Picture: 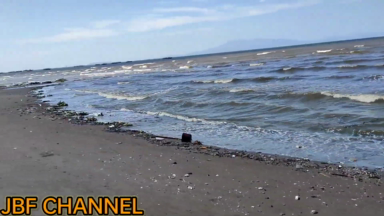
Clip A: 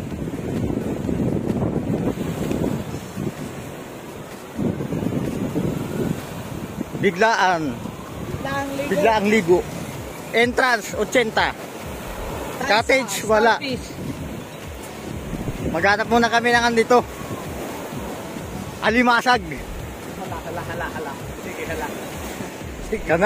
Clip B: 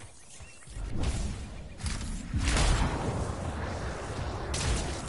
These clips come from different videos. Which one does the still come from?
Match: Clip A